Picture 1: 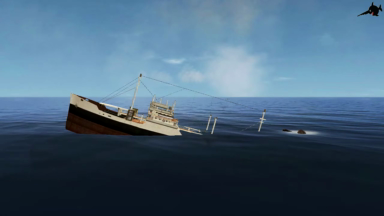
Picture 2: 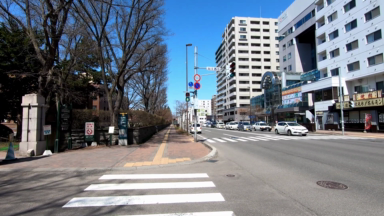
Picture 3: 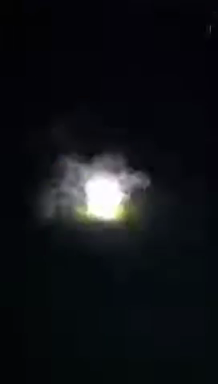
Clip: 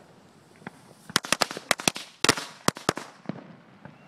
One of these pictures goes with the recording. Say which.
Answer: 3